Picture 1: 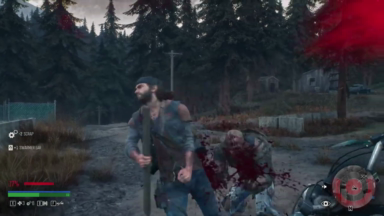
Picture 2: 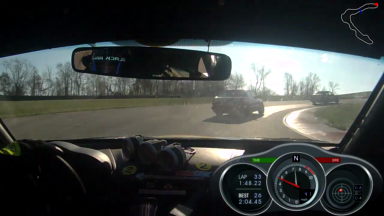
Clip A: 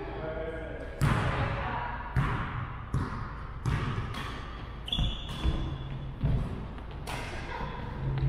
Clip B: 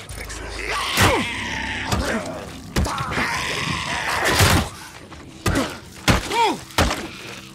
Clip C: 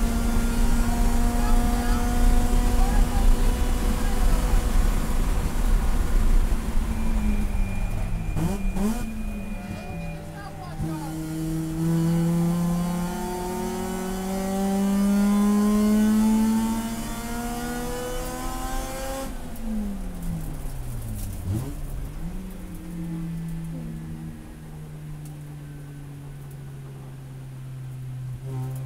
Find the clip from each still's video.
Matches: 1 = B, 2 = C